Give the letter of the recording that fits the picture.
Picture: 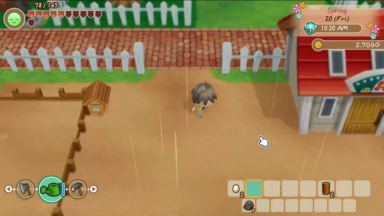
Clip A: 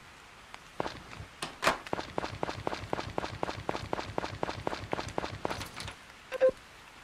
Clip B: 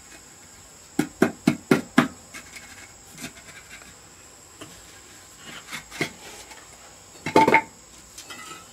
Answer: A